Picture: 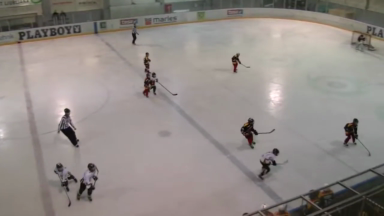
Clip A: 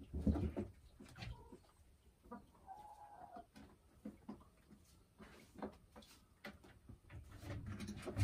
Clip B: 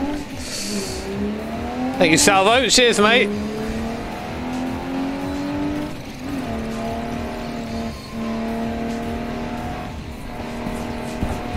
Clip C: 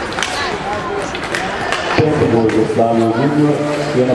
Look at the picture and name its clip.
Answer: C